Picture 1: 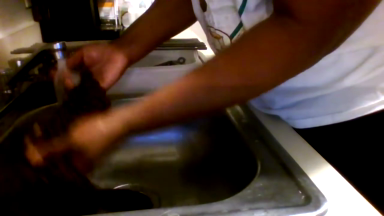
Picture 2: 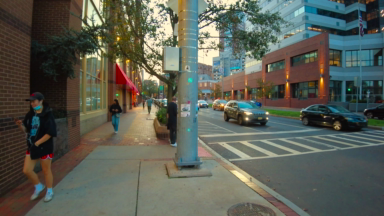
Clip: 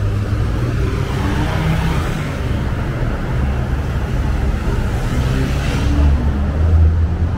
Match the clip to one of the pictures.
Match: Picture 2